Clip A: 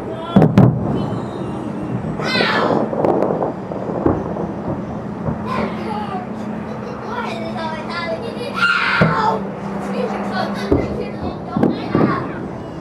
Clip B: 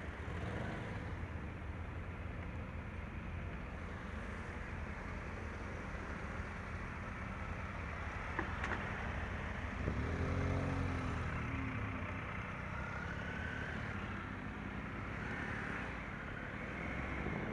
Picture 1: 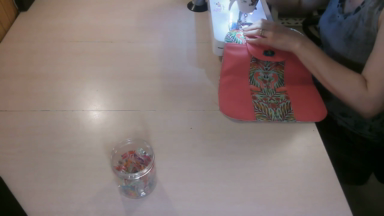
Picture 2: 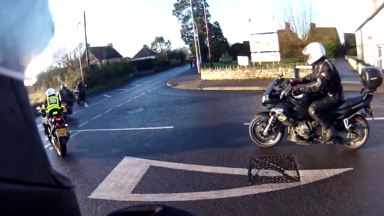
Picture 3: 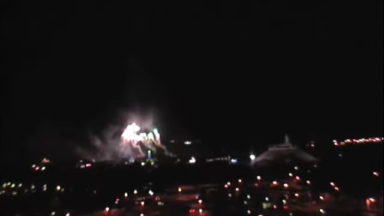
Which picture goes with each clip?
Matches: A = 3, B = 2